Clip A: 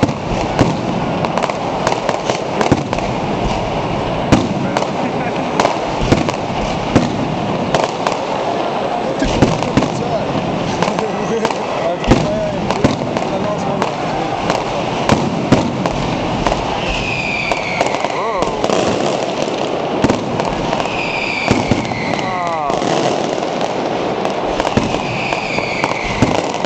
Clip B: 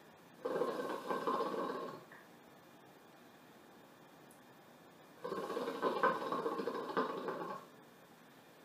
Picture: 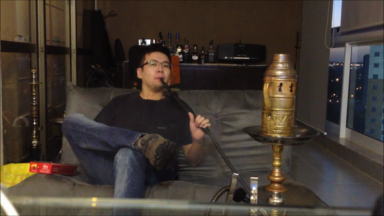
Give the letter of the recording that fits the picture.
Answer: B